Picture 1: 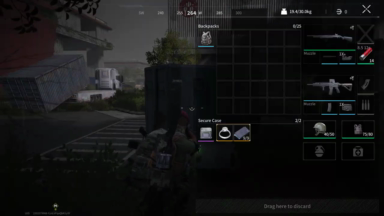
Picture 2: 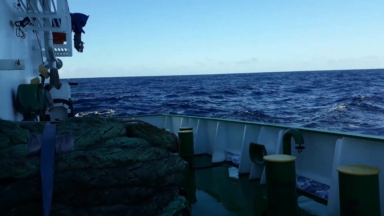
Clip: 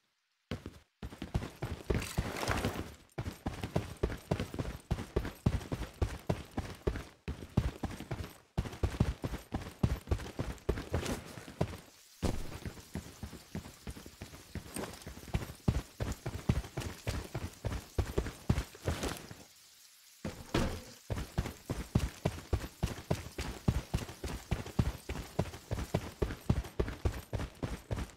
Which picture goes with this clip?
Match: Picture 1